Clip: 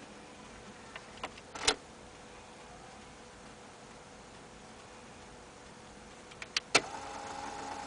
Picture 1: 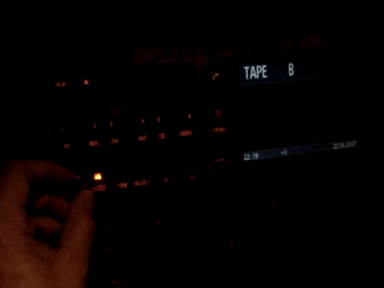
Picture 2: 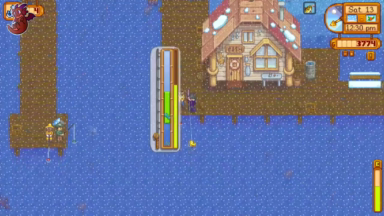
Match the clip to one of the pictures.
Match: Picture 1